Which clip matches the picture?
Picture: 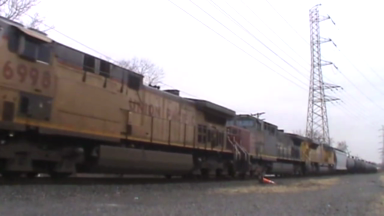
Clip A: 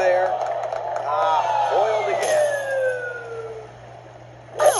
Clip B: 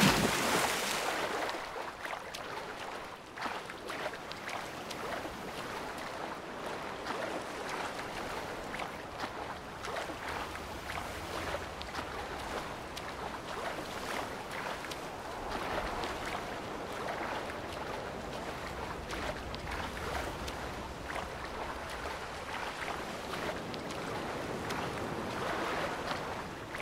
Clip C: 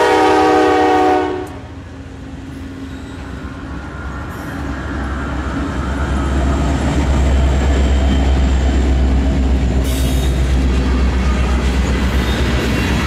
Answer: C